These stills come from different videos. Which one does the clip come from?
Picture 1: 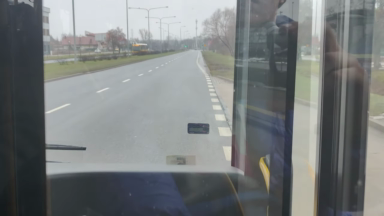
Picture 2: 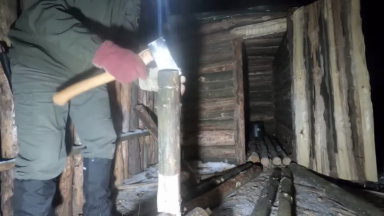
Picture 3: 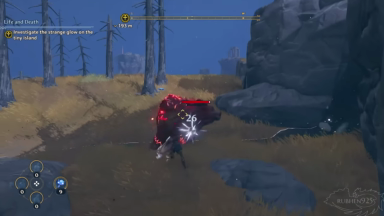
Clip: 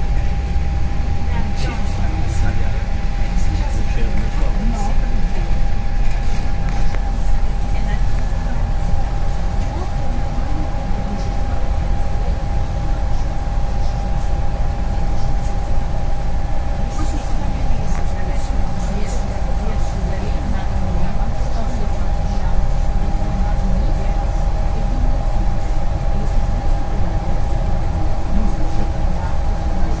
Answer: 1